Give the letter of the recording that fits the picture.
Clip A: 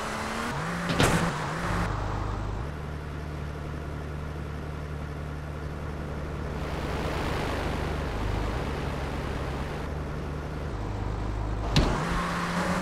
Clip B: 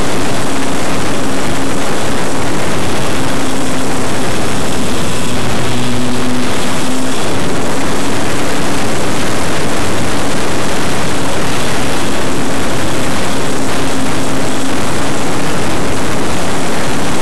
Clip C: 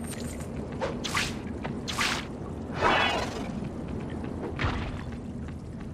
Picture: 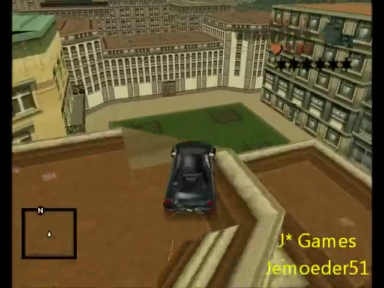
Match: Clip A